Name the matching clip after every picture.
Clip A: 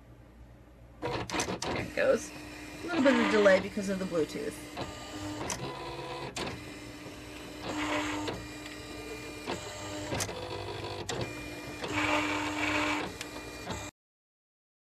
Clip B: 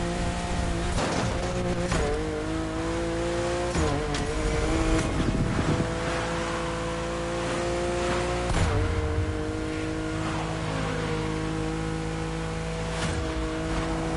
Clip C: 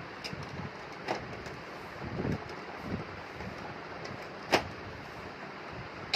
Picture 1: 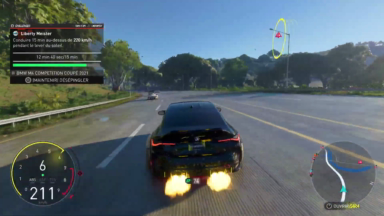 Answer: B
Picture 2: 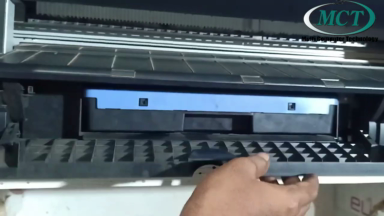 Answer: C